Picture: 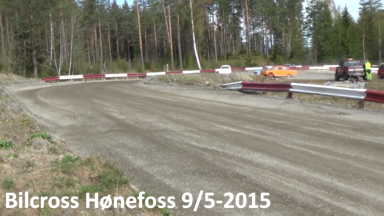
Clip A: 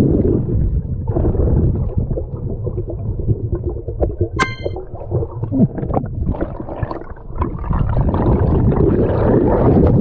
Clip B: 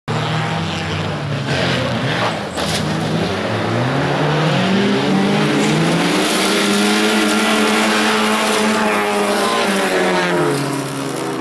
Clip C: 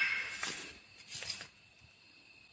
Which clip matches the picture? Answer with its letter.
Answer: B